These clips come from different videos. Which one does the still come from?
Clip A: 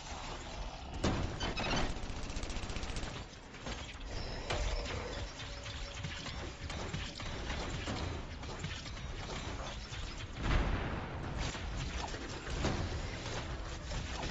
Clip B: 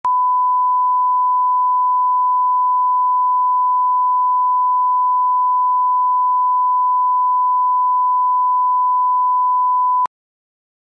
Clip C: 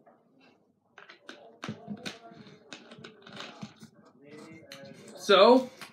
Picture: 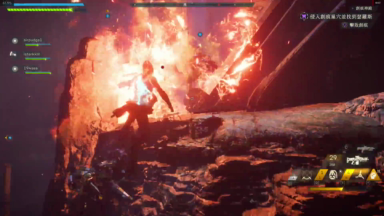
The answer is A